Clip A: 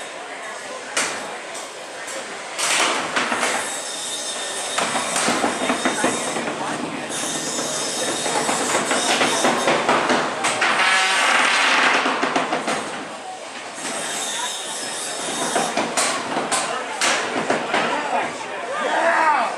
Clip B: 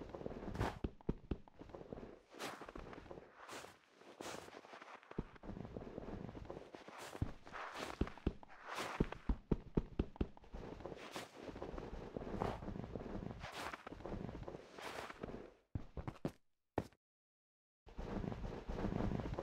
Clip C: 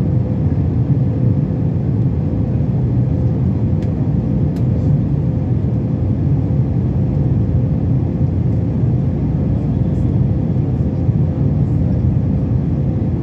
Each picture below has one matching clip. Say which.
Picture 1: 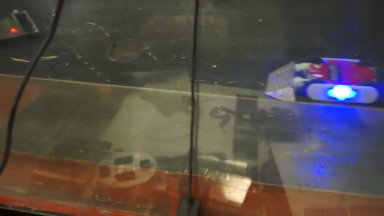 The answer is A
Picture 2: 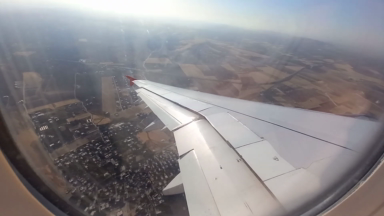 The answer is C